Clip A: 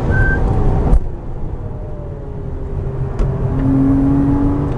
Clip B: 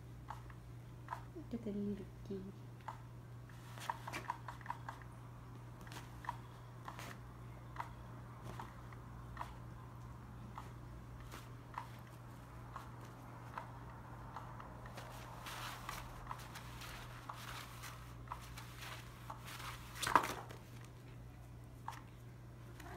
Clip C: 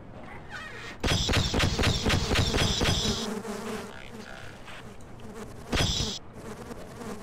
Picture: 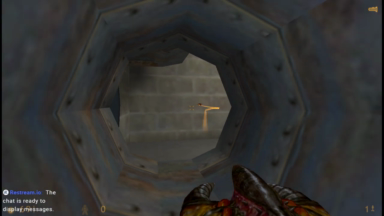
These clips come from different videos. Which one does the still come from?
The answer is C